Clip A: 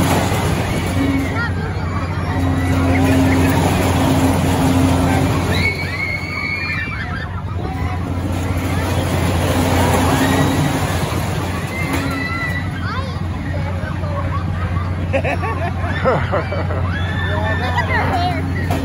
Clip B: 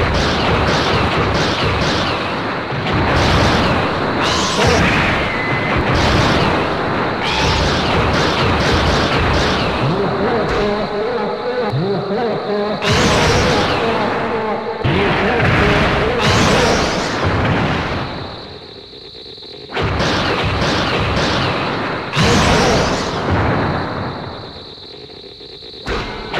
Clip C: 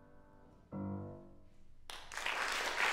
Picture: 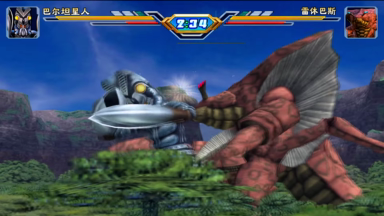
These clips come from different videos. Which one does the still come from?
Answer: B